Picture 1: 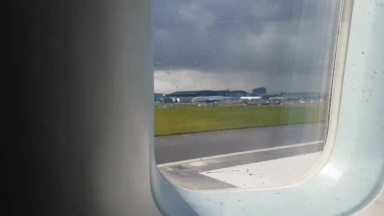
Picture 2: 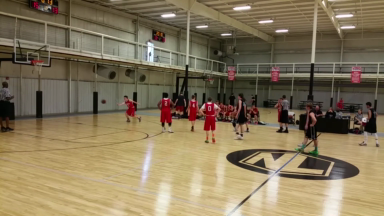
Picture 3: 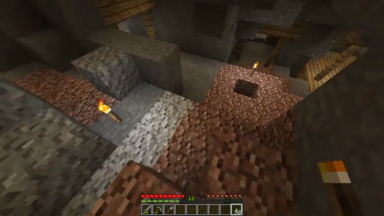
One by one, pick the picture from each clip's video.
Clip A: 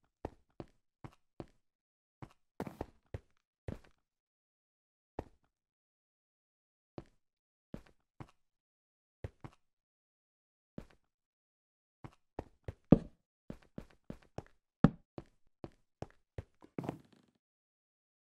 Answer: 3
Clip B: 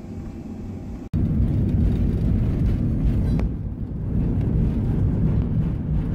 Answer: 1